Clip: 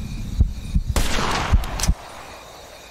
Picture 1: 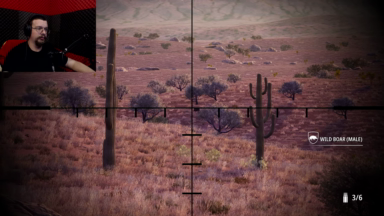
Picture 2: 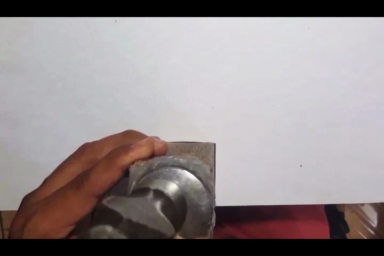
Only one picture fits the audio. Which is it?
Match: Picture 1